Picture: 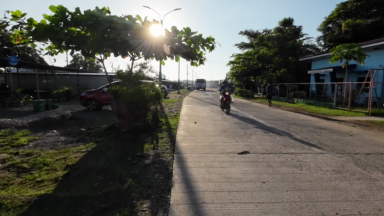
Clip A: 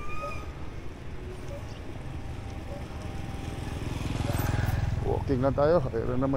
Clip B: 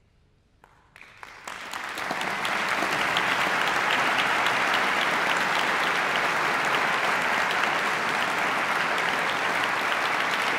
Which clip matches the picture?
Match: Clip A